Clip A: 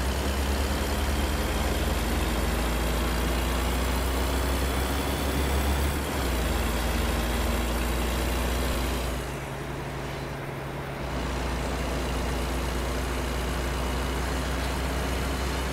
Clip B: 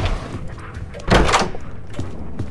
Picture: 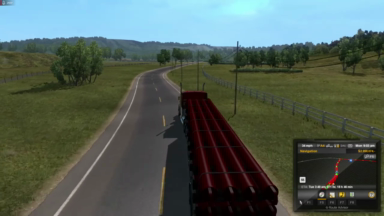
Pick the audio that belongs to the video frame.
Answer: A